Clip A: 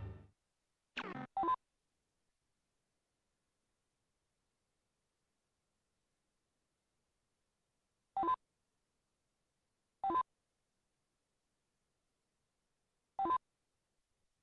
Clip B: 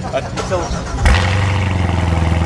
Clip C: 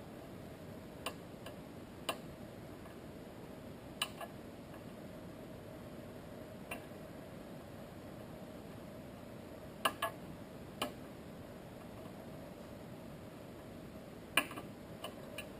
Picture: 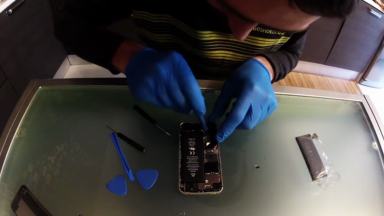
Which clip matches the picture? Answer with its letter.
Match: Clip C